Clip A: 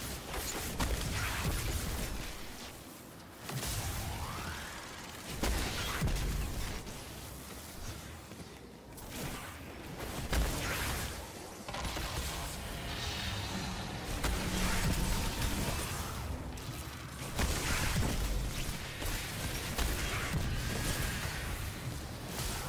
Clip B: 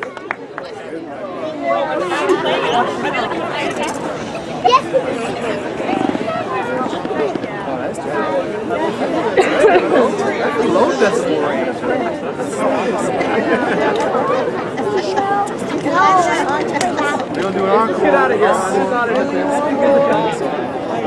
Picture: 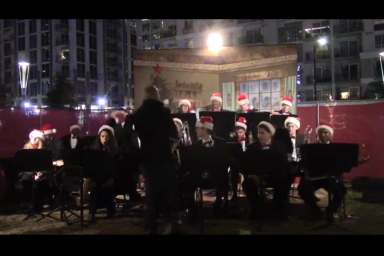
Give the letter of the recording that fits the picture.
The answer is B